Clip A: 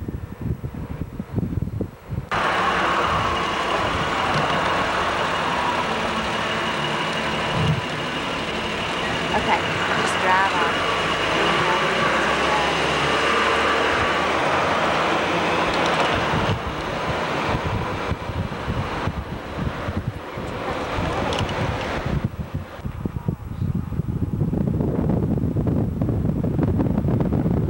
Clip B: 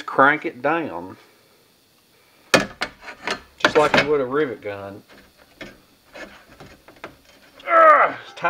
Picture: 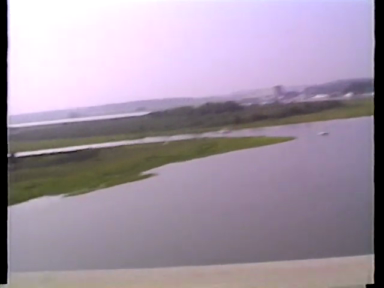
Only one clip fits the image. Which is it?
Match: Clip A